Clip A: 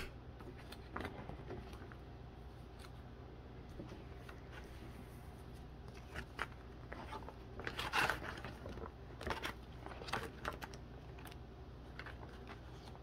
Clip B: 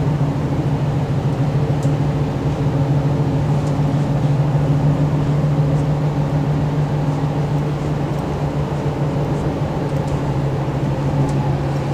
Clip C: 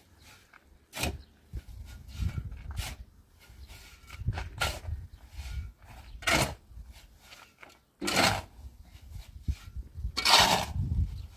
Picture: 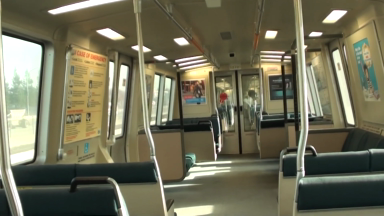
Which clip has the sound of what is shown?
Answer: B